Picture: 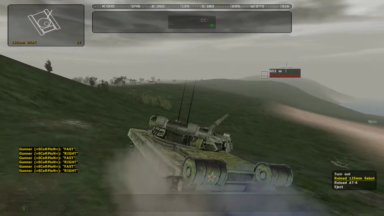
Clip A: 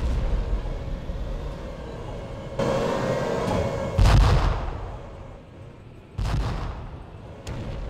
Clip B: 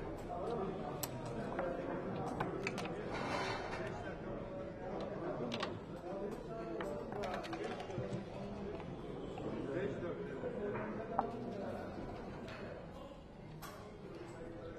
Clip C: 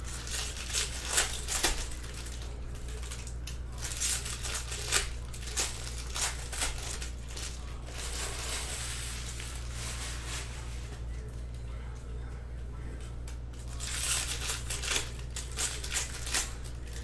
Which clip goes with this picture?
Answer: A